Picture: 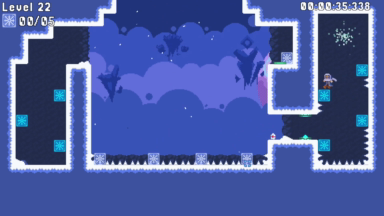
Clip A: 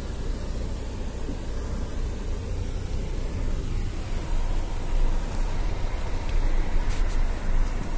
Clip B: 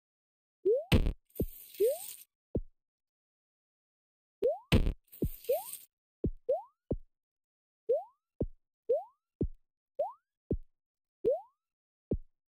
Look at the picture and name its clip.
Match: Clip B